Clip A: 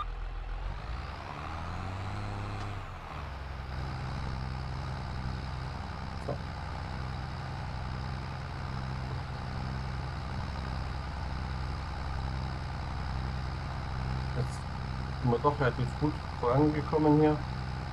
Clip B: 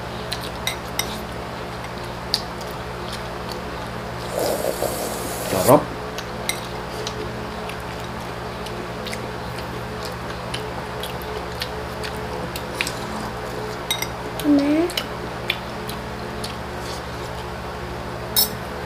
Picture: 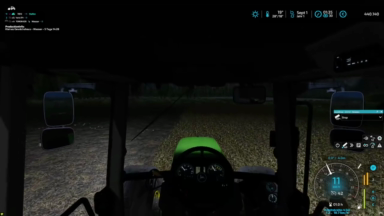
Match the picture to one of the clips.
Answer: A